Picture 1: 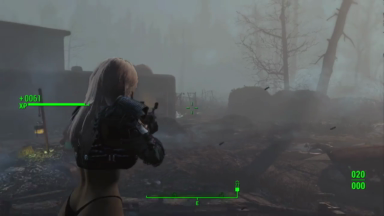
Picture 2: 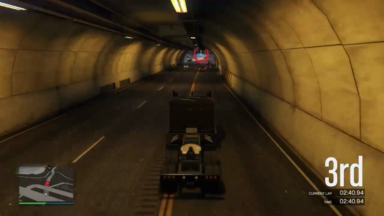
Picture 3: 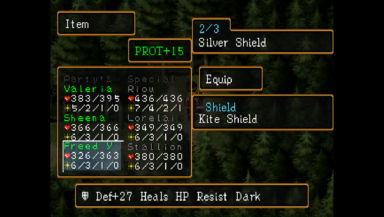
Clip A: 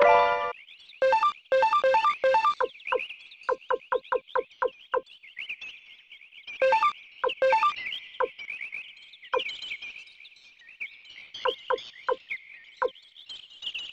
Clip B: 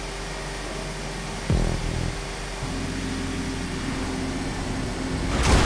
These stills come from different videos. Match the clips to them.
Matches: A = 3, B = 2